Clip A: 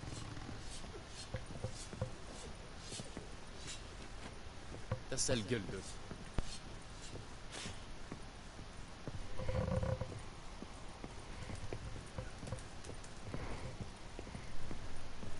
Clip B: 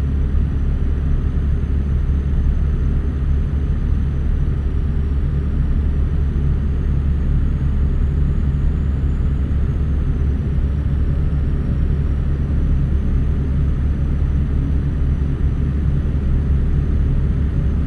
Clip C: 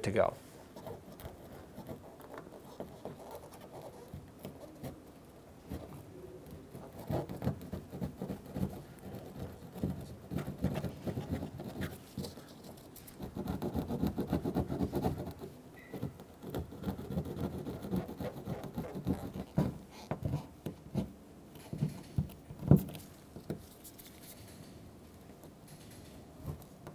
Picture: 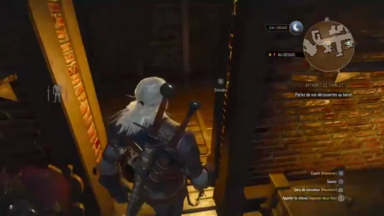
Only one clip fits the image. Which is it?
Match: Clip A